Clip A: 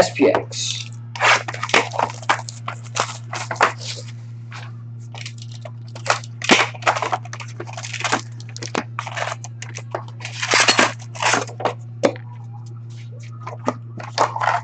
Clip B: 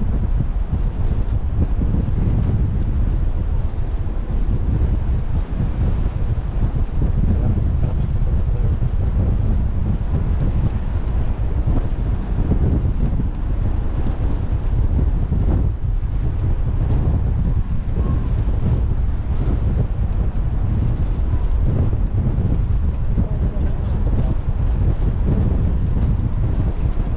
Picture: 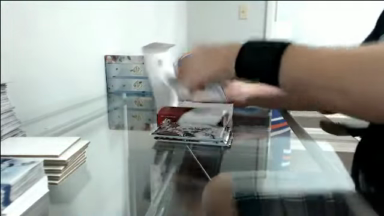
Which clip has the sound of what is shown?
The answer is A